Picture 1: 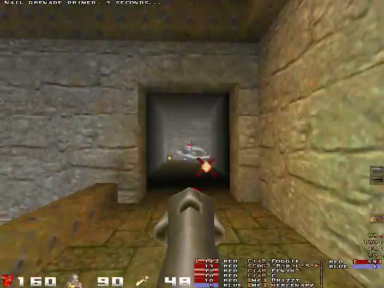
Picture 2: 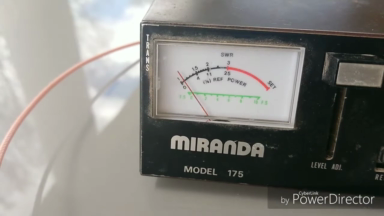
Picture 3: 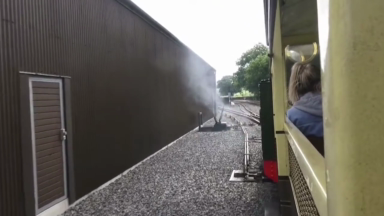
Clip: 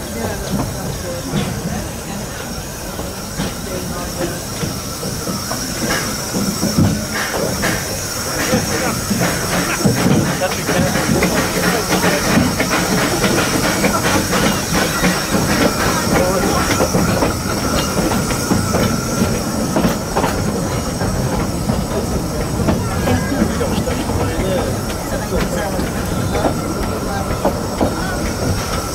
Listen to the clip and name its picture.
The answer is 3